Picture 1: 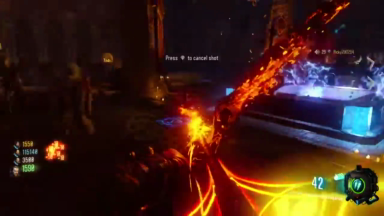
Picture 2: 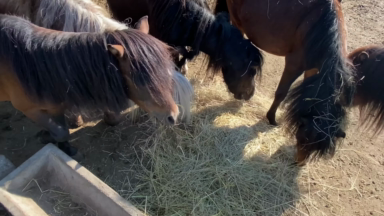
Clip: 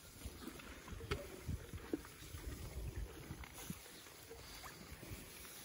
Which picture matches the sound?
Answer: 2